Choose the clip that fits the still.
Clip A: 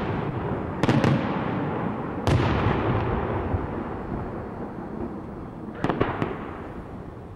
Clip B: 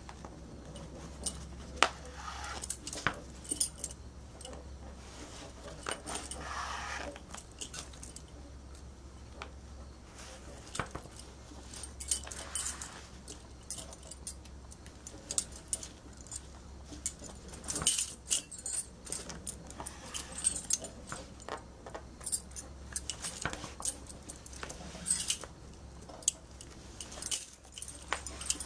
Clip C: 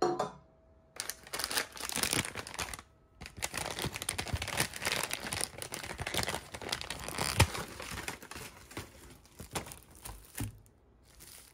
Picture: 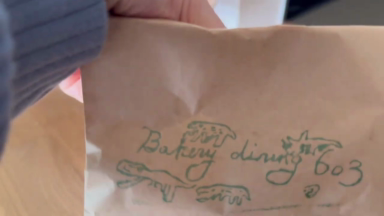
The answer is C